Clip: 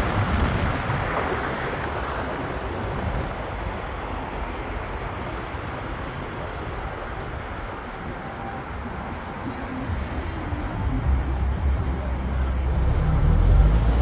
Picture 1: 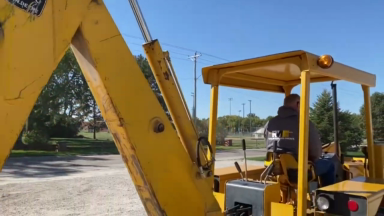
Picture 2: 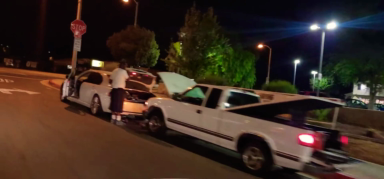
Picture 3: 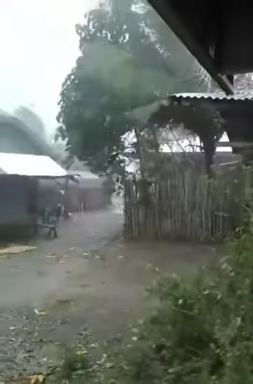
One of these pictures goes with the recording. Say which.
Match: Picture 2